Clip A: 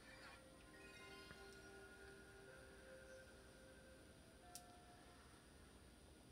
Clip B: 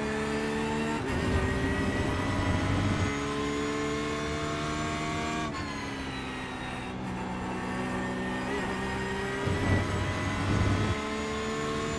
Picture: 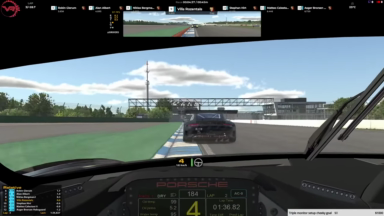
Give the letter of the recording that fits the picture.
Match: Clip B